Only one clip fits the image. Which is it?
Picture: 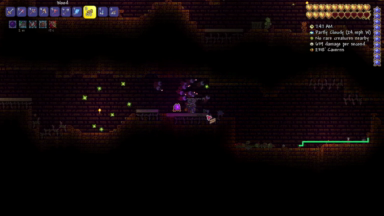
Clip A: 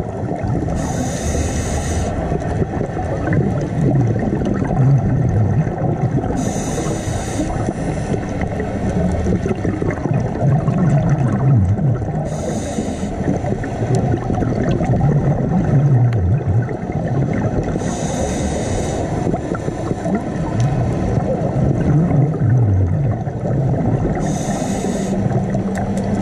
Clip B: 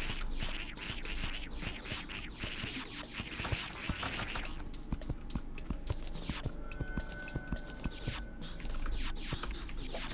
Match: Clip B